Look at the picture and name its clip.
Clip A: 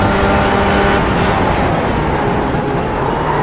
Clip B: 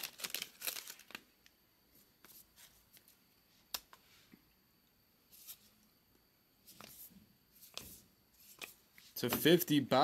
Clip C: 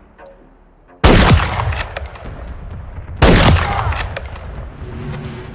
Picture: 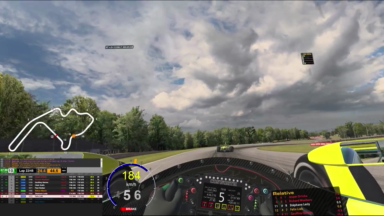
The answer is A